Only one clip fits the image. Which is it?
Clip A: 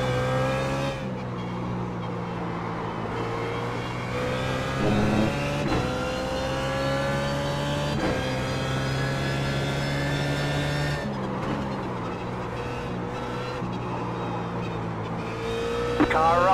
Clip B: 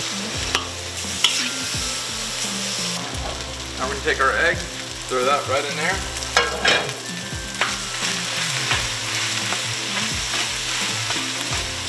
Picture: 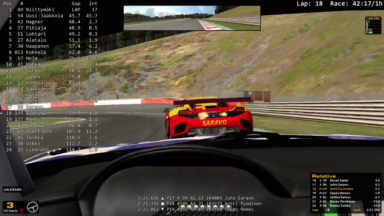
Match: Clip A